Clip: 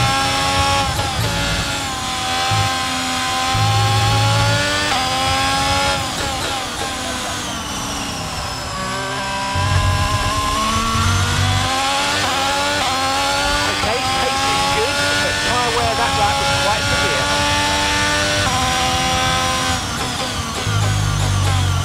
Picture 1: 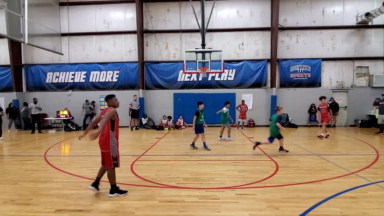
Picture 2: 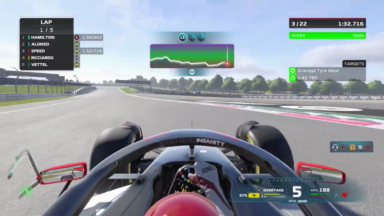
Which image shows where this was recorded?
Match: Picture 2